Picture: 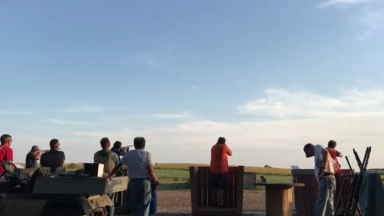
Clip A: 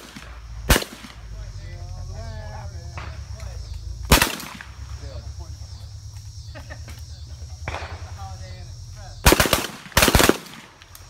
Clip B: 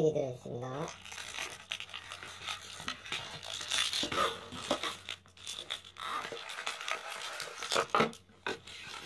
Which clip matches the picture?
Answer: A